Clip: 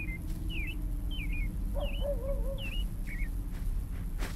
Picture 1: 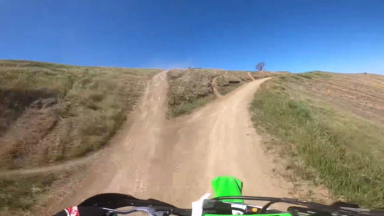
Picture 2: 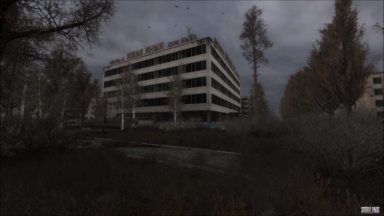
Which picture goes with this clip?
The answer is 2